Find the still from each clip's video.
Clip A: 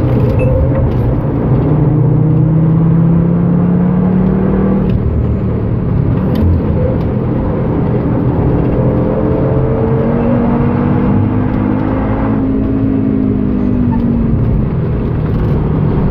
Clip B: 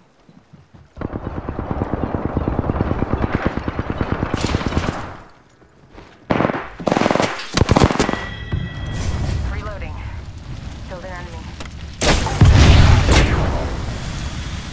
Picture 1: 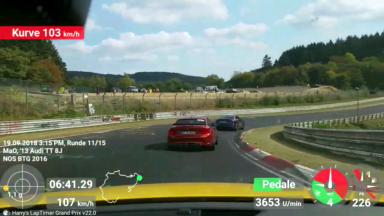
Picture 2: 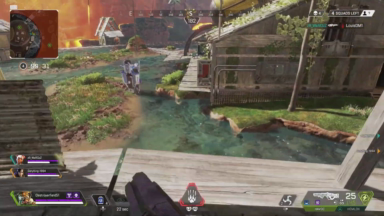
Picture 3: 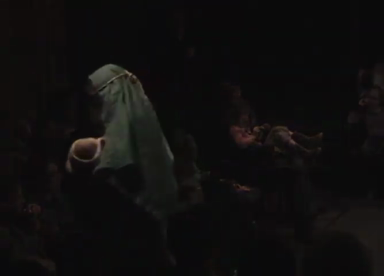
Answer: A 1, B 2